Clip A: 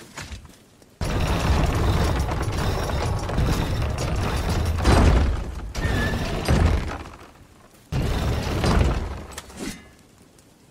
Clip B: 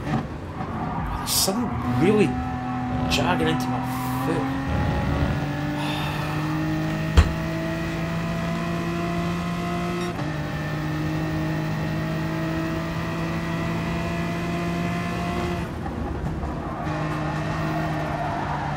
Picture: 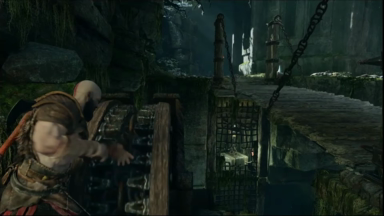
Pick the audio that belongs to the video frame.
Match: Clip A